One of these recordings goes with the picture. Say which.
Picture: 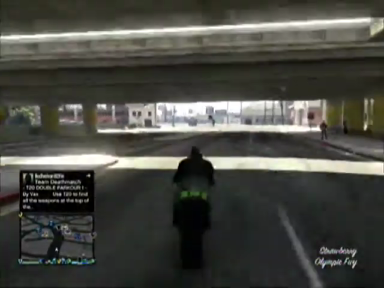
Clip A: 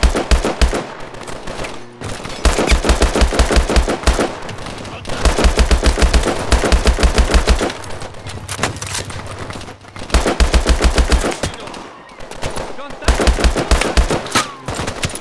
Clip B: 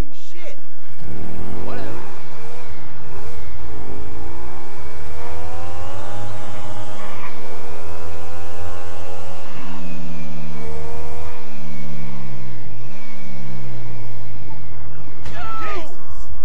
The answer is B